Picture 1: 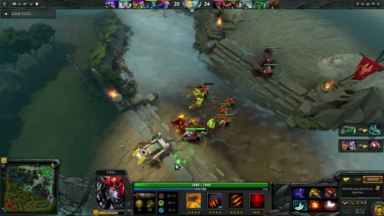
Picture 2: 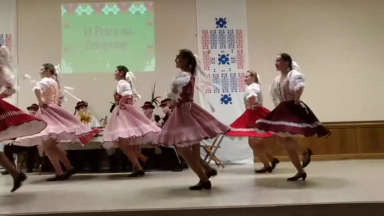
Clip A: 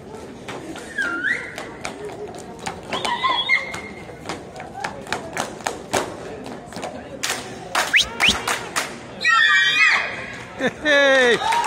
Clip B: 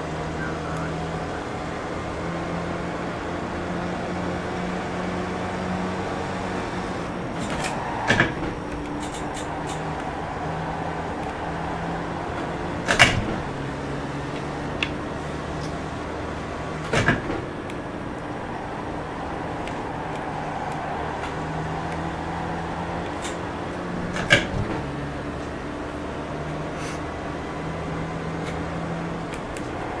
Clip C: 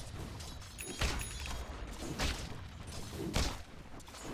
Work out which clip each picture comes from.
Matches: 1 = C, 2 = A